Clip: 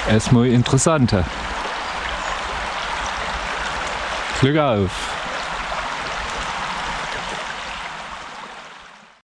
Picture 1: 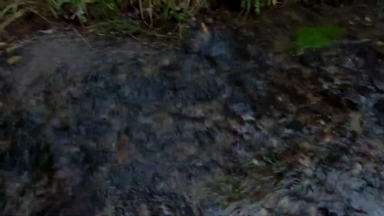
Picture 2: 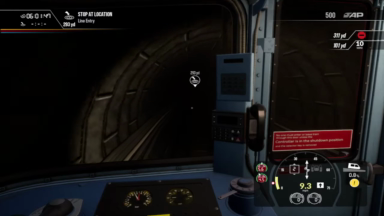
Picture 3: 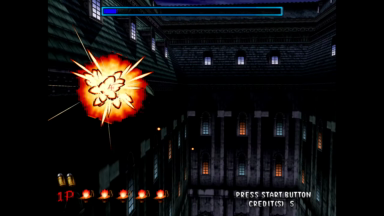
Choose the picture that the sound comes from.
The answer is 1